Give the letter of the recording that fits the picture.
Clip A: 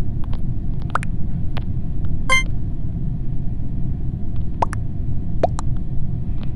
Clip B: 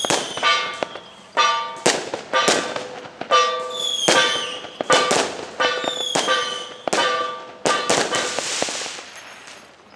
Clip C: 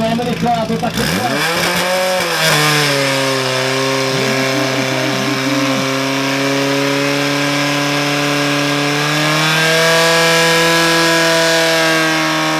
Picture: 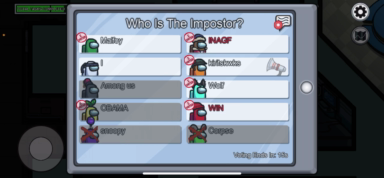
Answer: A